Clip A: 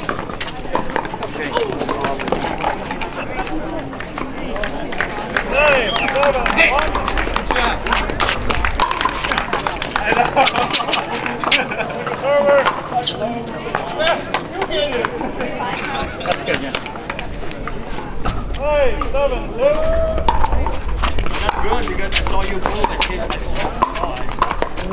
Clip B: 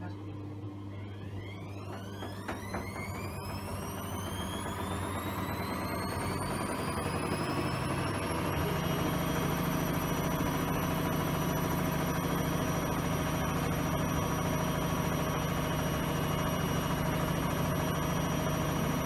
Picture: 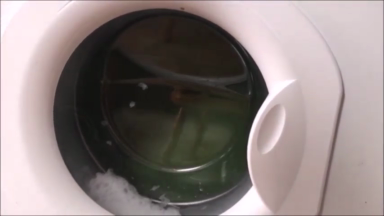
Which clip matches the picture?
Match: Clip B